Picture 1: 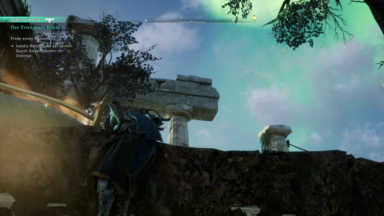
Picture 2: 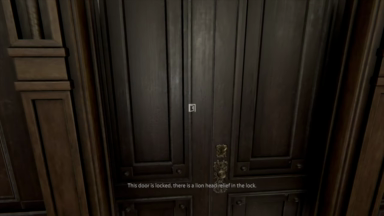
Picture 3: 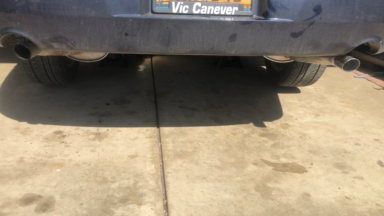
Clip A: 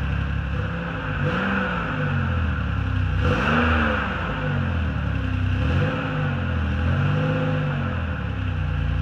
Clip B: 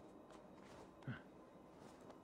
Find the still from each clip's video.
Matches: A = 3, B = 1